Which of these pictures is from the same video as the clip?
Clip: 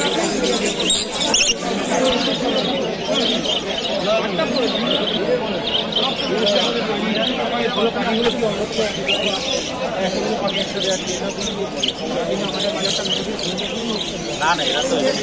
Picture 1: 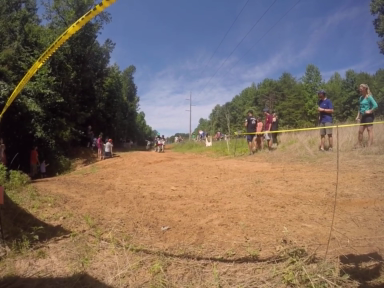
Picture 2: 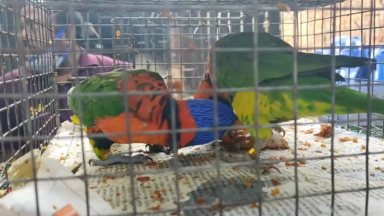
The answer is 2